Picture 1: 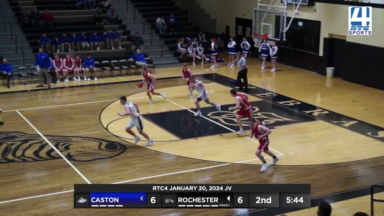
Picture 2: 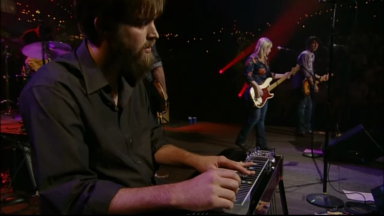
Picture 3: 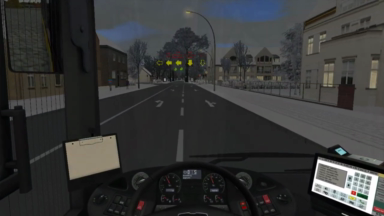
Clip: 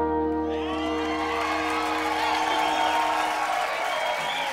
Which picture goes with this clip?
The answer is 2